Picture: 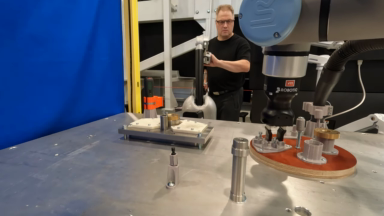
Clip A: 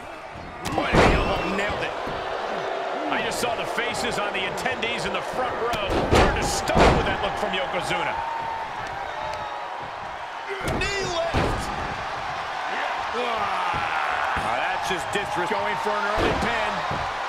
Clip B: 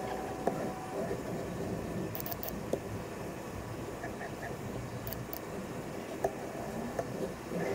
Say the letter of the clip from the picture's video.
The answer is B